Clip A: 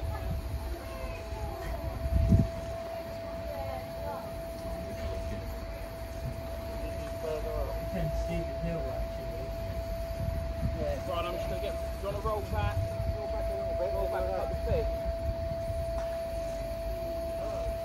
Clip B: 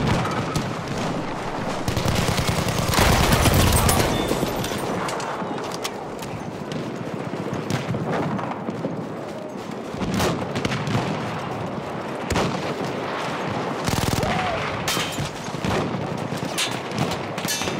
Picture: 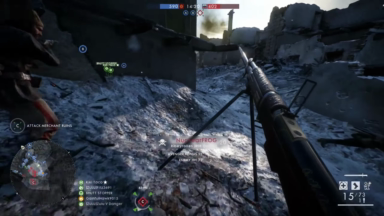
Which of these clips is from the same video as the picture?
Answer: B